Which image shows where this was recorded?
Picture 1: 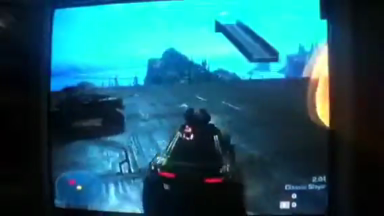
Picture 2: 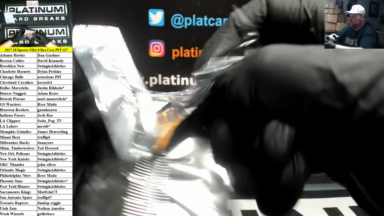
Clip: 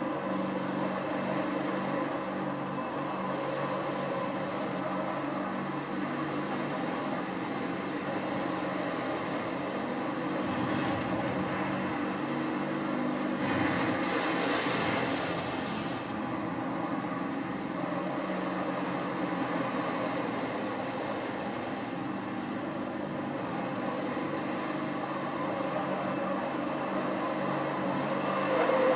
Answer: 1